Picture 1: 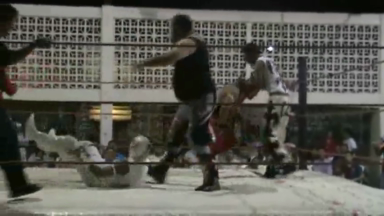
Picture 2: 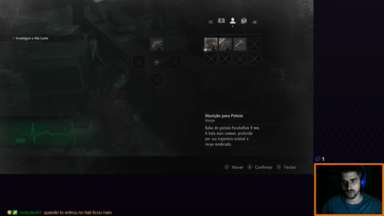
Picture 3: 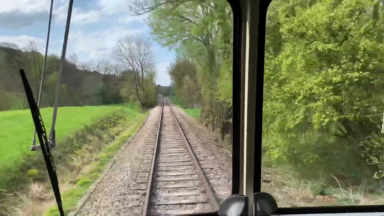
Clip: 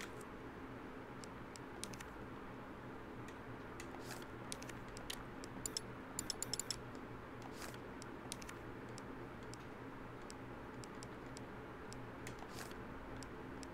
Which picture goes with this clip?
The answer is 2